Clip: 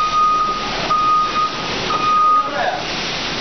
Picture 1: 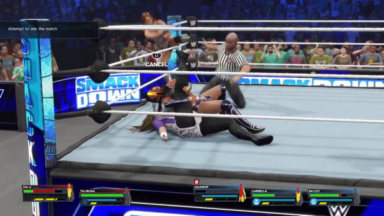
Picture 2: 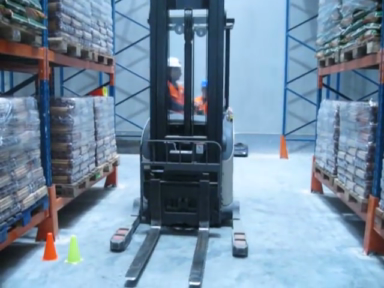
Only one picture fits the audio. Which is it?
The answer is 2